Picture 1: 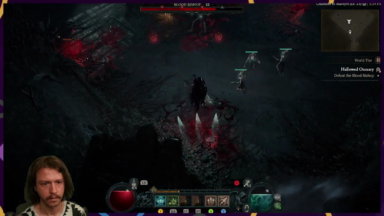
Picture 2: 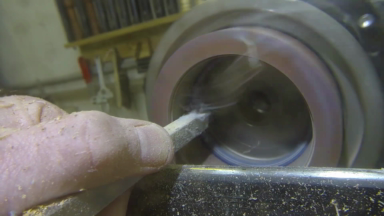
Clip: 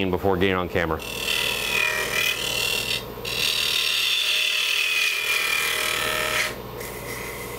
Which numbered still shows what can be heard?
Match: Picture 2